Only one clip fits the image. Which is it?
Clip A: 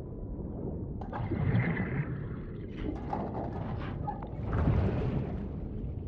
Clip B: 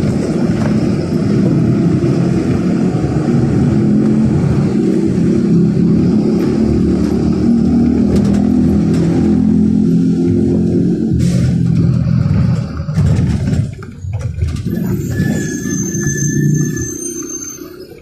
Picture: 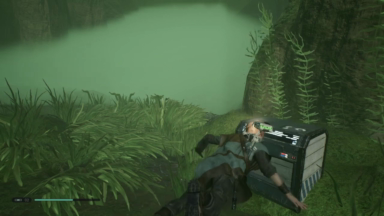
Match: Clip A